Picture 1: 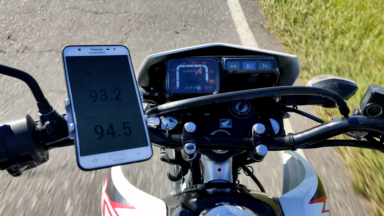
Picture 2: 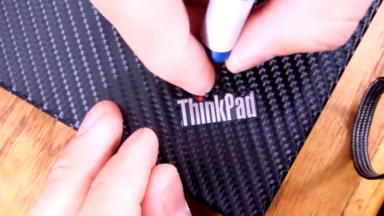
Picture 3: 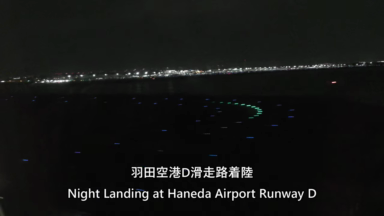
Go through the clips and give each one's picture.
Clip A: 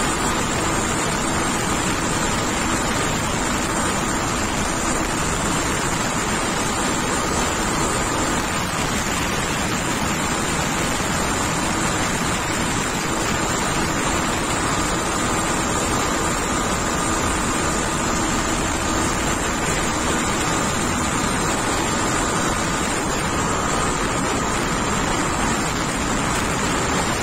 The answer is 1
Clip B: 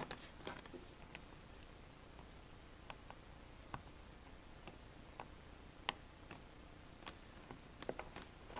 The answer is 2